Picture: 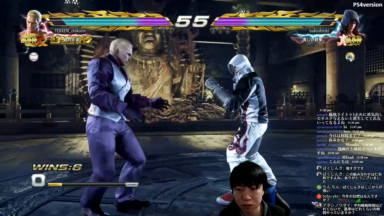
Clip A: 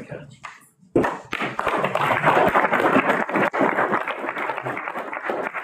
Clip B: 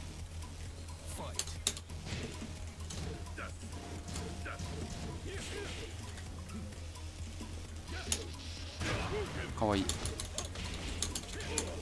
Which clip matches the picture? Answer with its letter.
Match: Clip B